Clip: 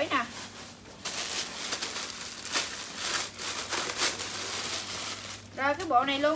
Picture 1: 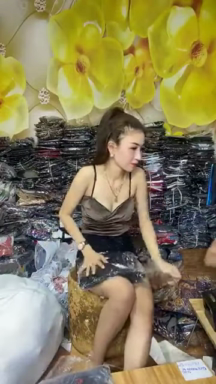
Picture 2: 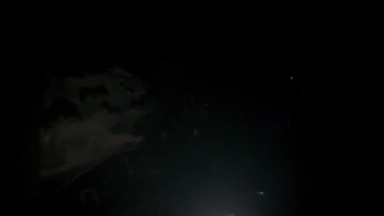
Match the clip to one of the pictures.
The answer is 1